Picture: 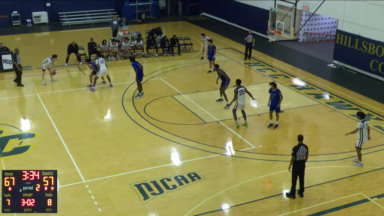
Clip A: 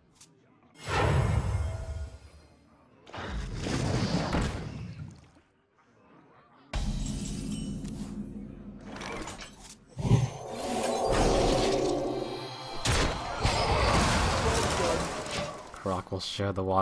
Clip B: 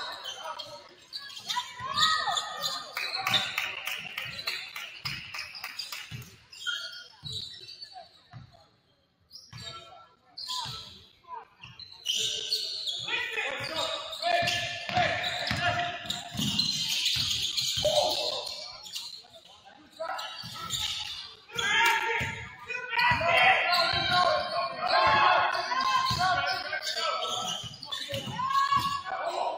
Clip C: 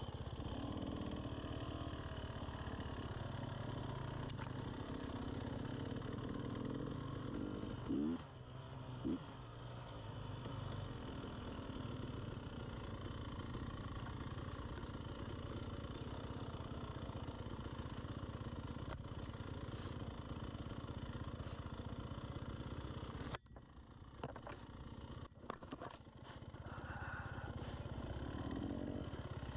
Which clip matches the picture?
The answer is B